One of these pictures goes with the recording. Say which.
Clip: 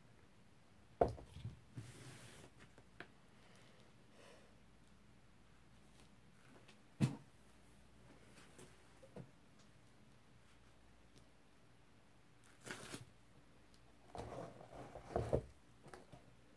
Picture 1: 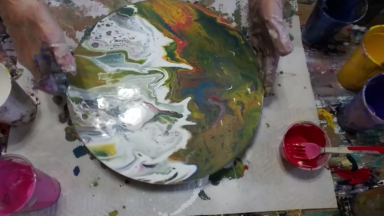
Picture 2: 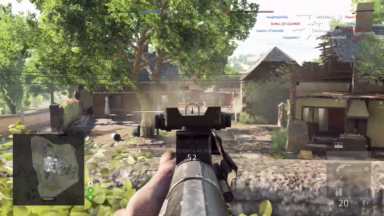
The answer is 1